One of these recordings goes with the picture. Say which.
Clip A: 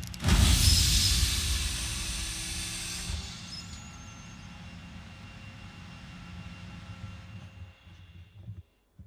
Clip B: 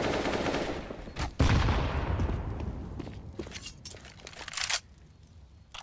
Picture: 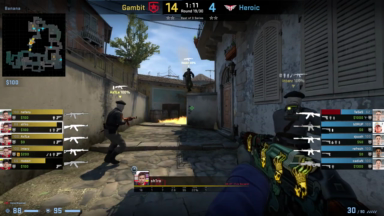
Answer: B